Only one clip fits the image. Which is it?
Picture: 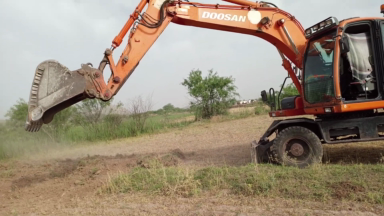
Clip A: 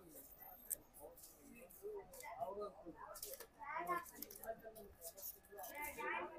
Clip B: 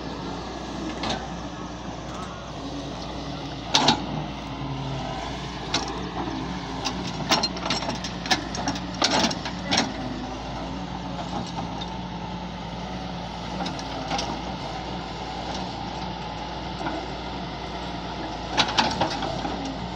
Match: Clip B